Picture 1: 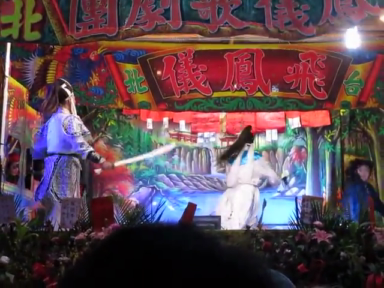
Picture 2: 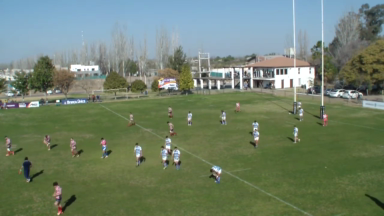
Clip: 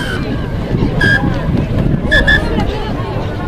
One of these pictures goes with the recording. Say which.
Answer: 2